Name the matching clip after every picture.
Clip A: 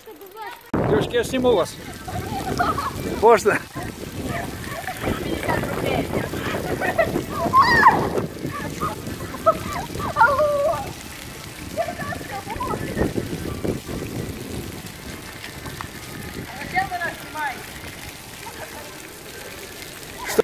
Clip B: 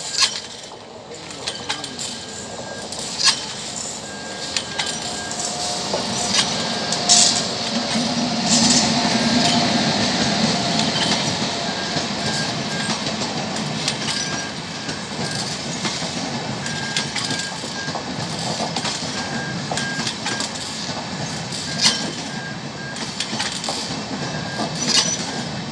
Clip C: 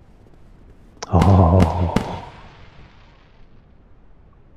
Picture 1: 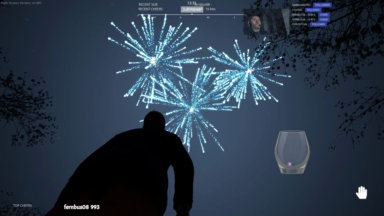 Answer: C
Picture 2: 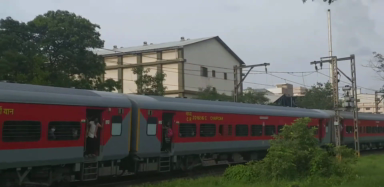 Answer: B